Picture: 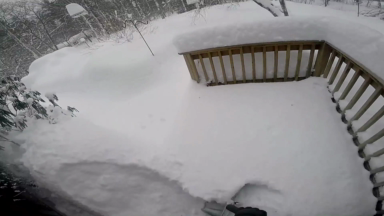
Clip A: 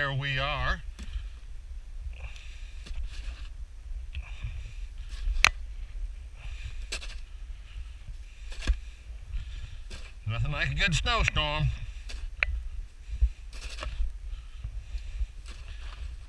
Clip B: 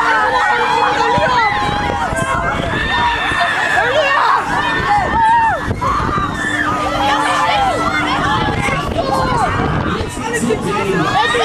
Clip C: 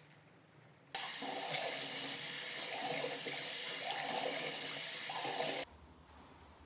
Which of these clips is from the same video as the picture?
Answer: A